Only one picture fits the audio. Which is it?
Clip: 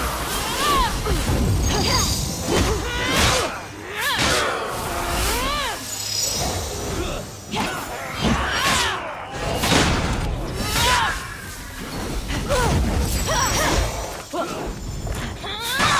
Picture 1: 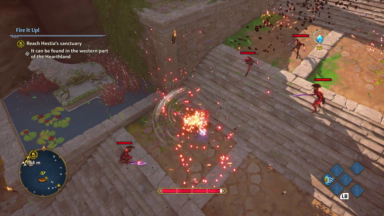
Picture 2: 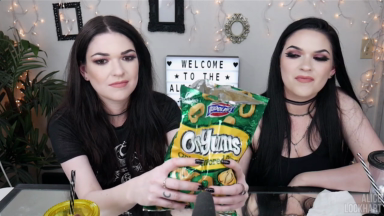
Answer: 1